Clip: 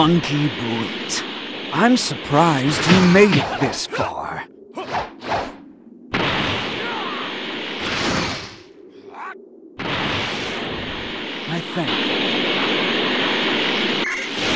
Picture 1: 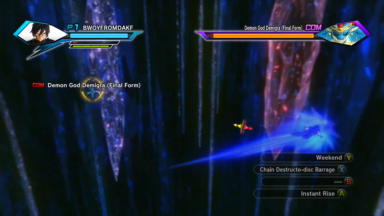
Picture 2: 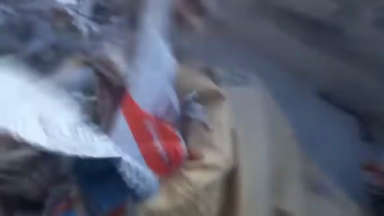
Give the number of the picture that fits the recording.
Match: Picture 1